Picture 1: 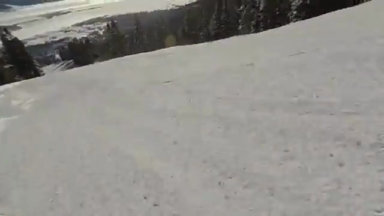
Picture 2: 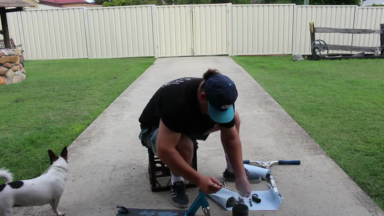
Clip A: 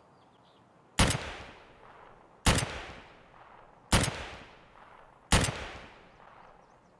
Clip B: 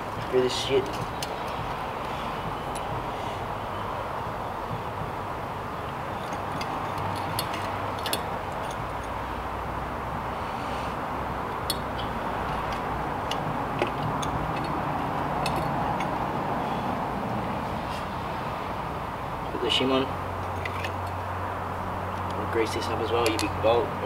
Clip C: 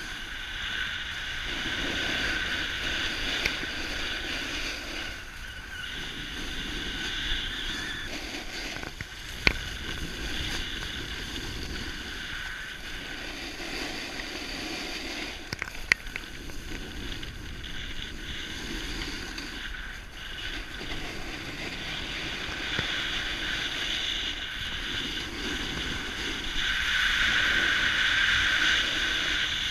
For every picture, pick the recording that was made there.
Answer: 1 C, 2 B